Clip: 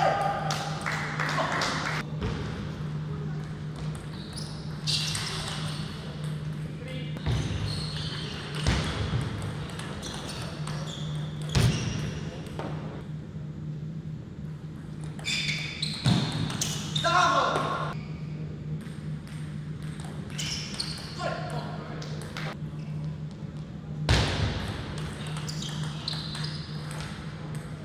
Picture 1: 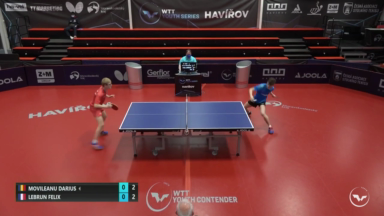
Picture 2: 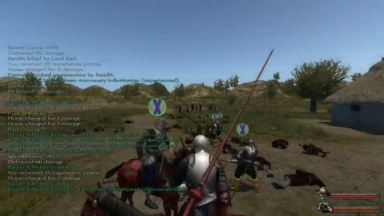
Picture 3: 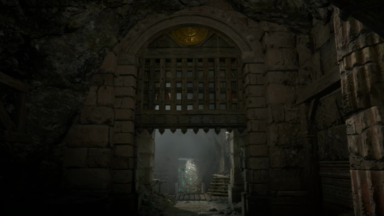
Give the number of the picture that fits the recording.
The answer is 1